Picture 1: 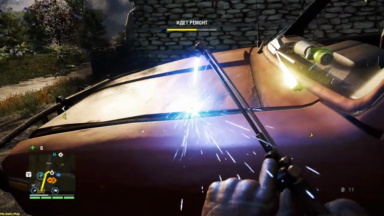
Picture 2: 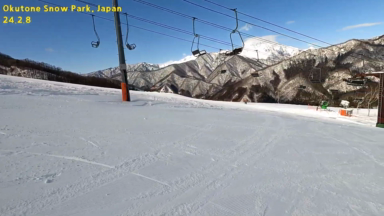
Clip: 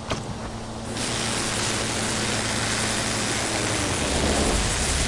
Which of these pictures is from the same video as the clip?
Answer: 1